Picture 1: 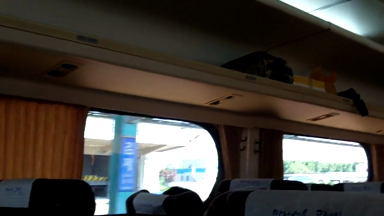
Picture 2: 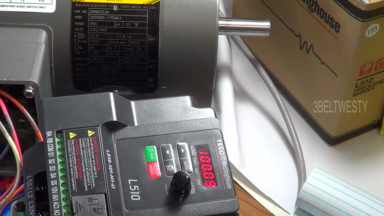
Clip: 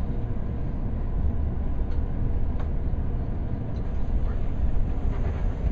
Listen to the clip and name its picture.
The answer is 1